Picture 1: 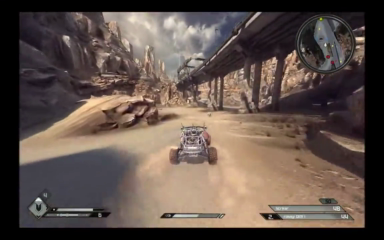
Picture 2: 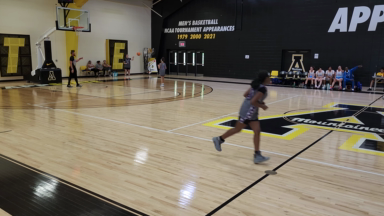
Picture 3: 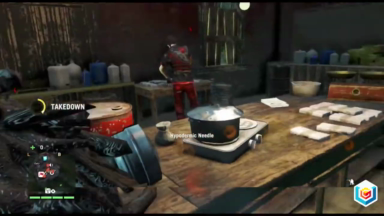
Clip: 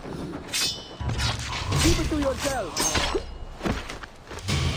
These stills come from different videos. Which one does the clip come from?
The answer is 3